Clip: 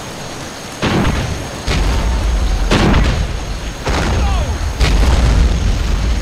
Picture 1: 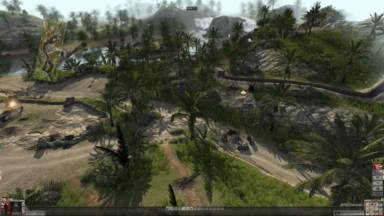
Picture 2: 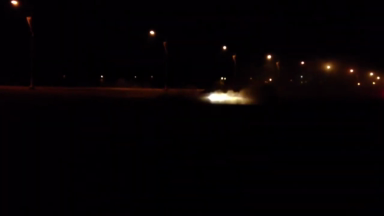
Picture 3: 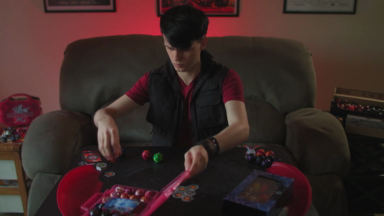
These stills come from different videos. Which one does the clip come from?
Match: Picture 1